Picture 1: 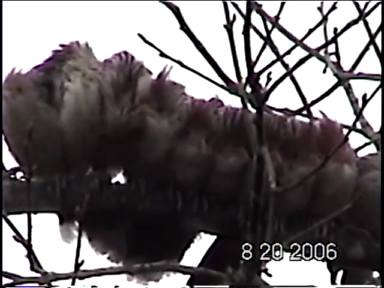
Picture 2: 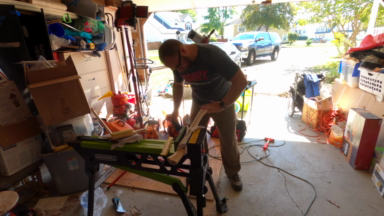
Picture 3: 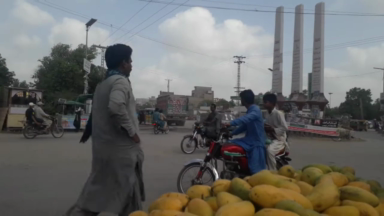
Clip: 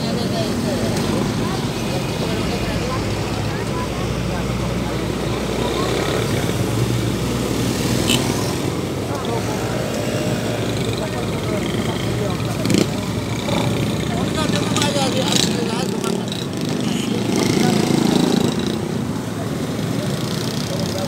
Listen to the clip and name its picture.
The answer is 3